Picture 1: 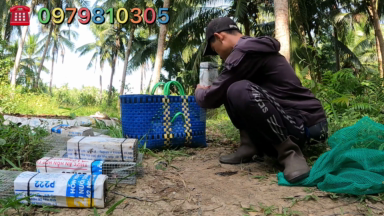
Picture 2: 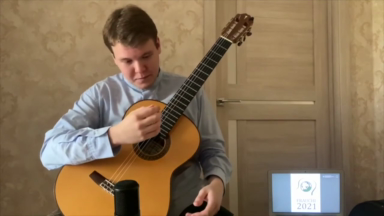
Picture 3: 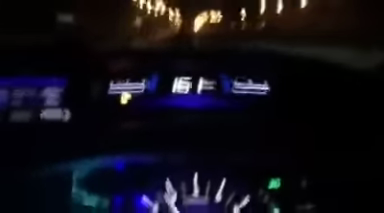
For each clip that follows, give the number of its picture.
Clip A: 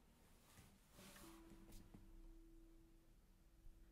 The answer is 2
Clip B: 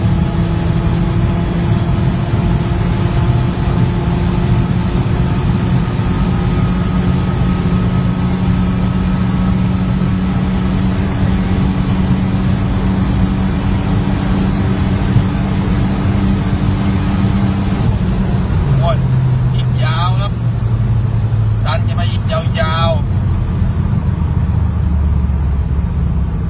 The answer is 3